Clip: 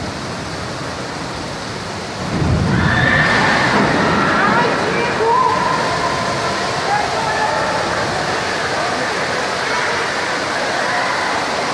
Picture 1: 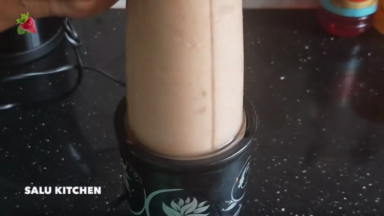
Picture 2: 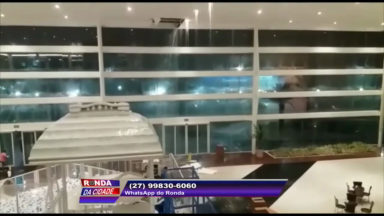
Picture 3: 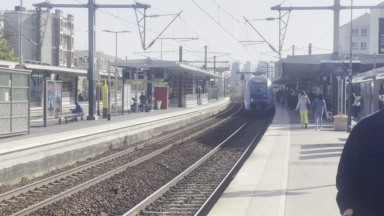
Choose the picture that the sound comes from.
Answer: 2